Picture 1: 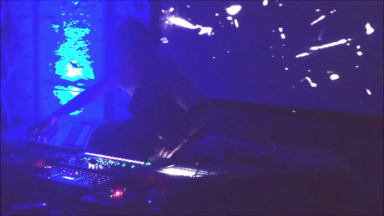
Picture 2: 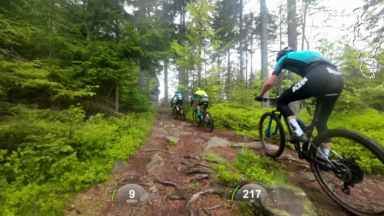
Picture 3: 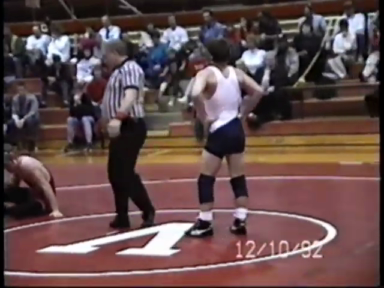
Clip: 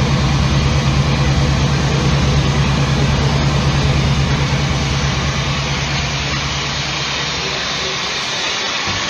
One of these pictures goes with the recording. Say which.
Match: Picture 1